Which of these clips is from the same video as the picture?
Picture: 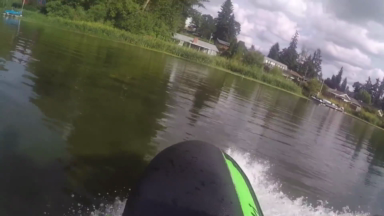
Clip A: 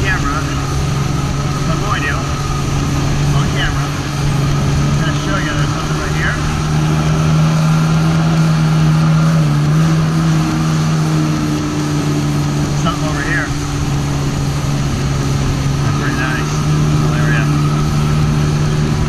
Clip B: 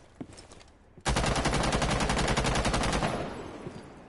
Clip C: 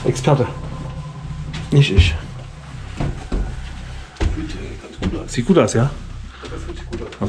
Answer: A